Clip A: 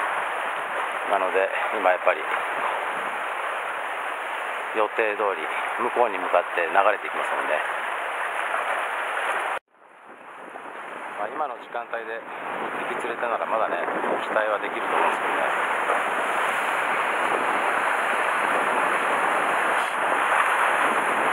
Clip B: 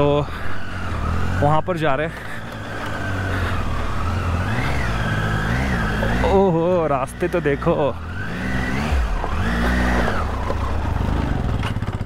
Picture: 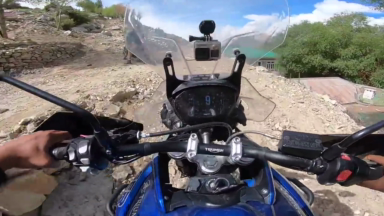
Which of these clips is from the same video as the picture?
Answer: B